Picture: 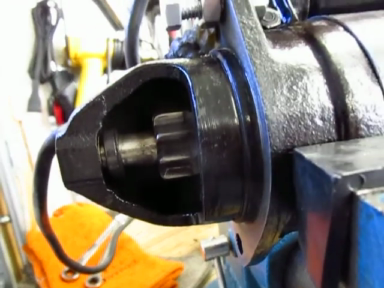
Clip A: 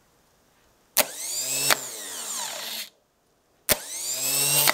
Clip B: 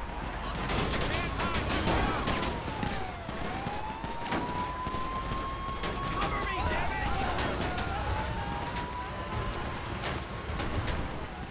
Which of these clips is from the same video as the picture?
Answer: A